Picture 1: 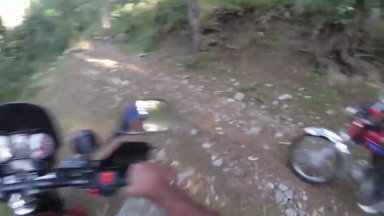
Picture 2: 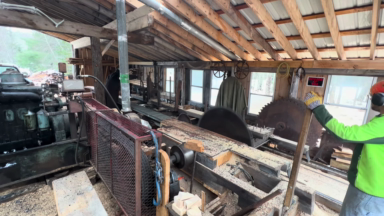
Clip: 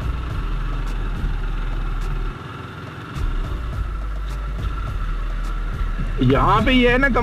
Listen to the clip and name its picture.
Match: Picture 1